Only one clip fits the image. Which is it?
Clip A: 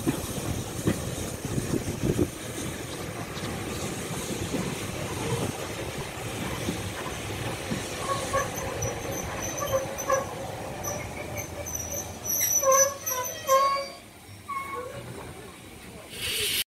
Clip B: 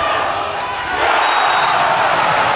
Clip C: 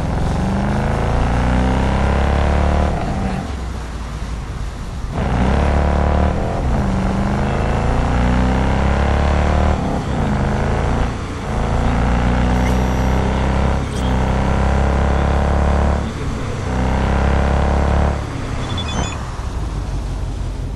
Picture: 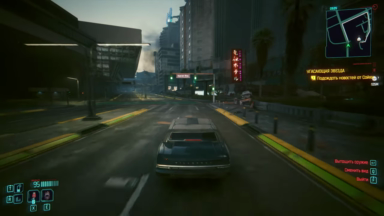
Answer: C